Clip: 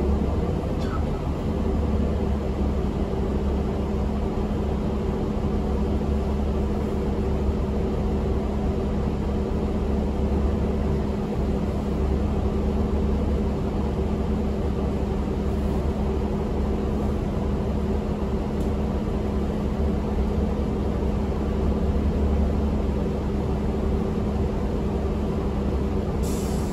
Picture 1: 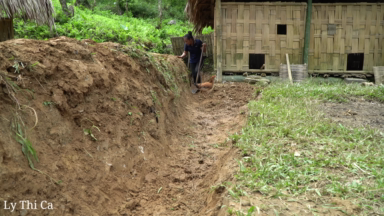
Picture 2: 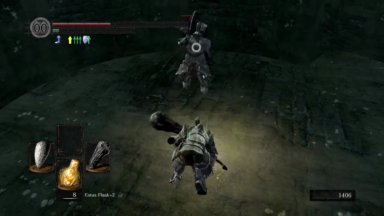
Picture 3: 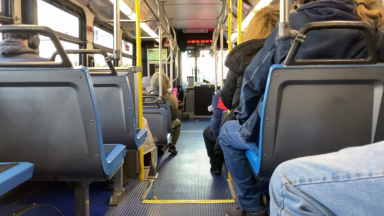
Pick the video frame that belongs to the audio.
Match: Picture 3